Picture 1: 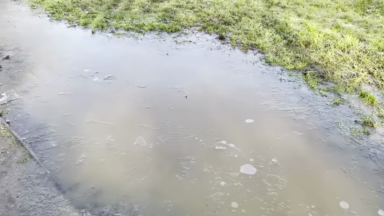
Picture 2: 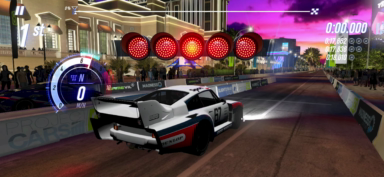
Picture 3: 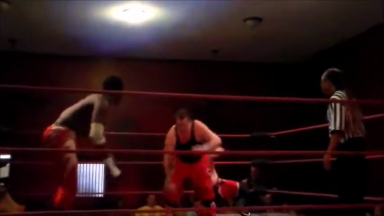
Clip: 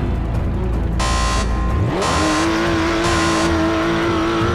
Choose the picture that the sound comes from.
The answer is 2